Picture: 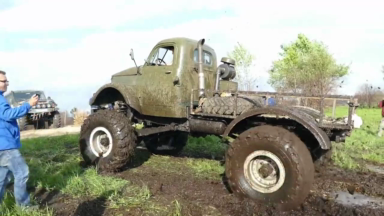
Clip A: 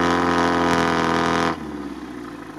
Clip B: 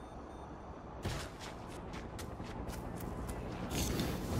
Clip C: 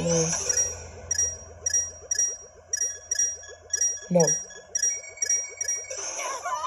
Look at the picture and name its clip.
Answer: A